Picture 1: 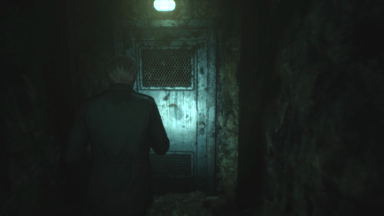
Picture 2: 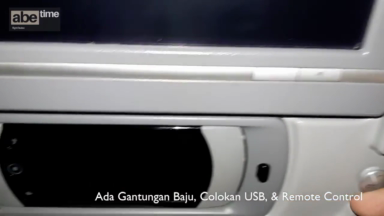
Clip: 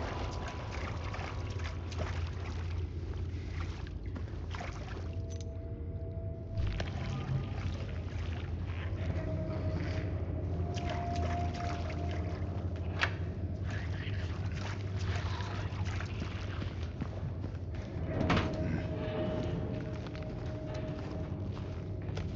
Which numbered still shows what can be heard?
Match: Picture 1